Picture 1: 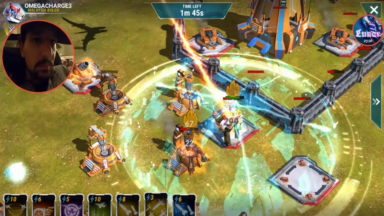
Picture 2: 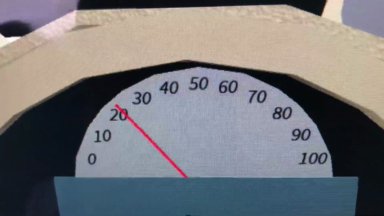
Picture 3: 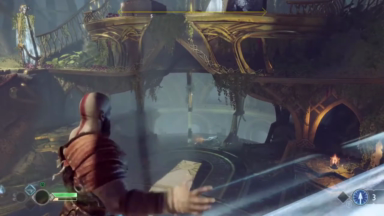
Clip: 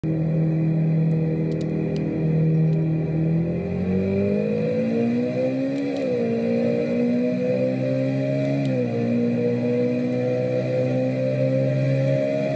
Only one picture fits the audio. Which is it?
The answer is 2